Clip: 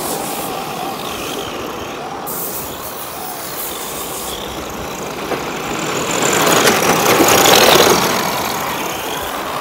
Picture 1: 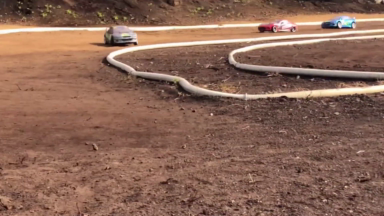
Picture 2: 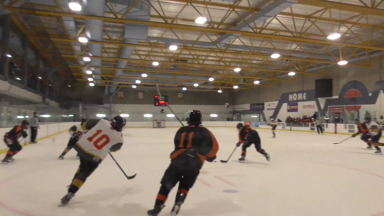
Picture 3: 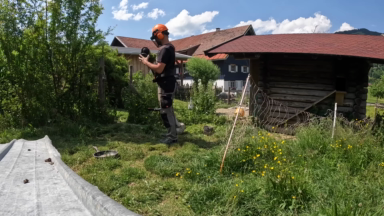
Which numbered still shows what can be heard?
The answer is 1